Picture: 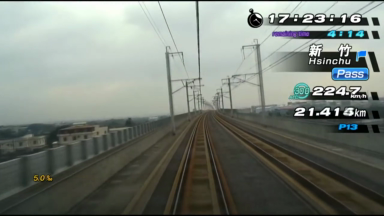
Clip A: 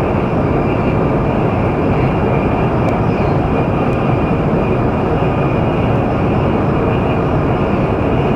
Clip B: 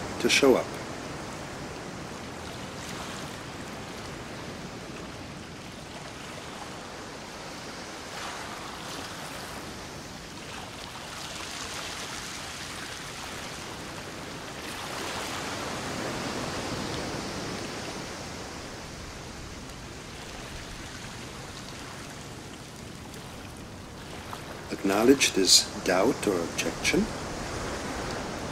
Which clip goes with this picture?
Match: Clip A